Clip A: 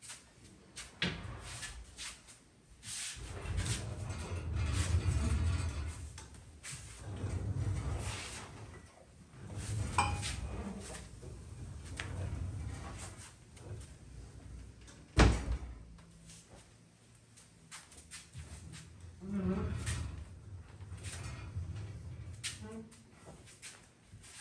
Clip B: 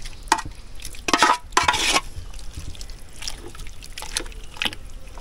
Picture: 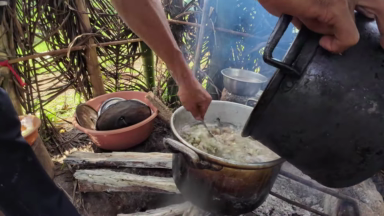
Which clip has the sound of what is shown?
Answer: B